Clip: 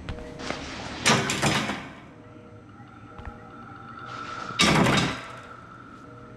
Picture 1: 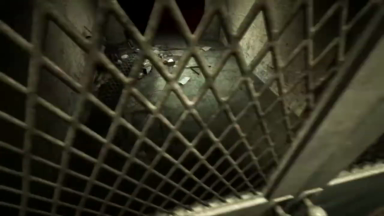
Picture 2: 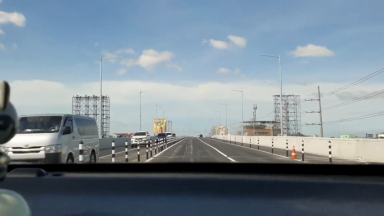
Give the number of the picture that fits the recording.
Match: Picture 1